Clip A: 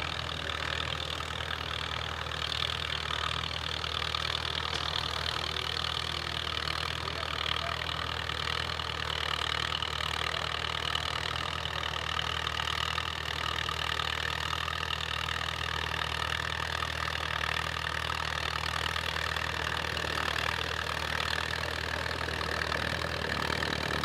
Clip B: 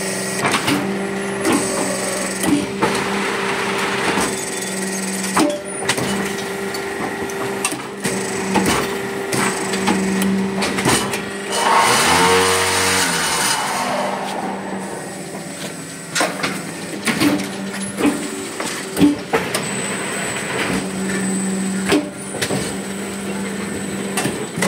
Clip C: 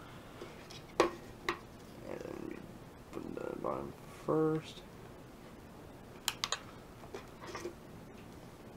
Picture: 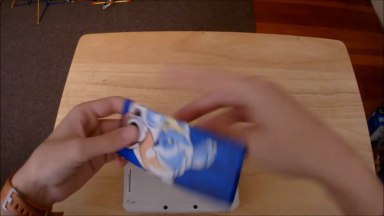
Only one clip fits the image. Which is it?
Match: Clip C